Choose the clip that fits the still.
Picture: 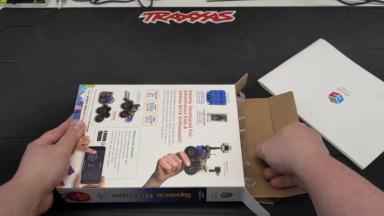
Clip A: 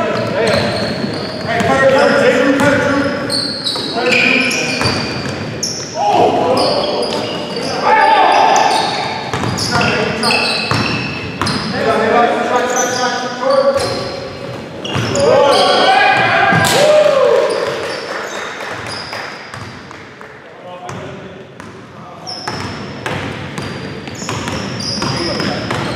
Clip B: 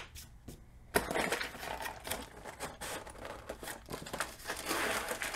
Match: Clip B